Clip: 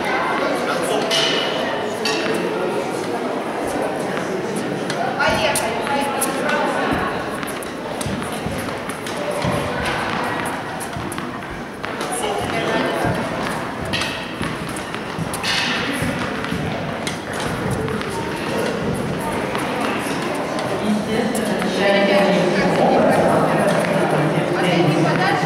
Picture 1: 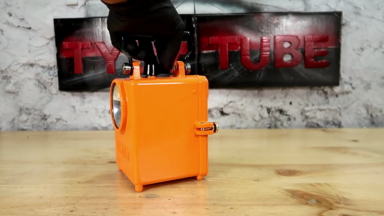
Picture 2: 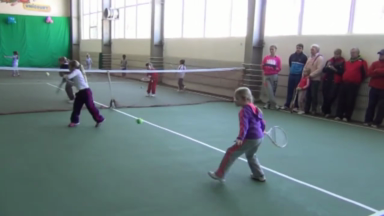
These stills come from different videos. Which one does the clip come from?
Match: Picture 2